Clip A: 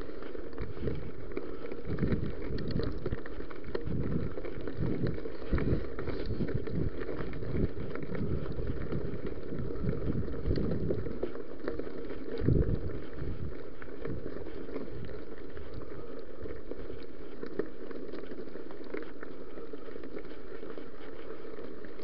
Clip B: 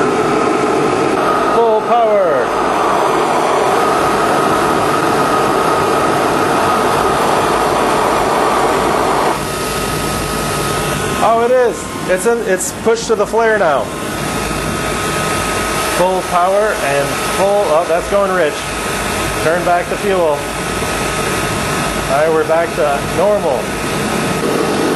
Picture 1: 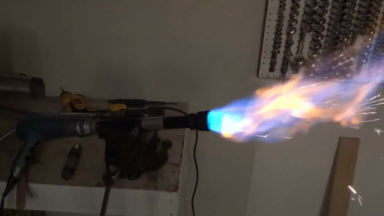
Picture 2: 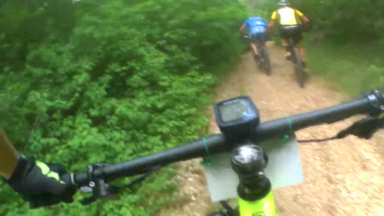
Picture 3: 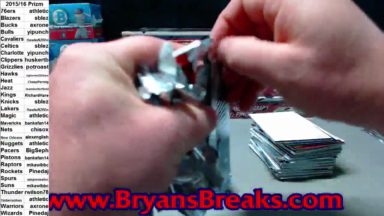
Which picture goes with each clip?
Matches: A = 2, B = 1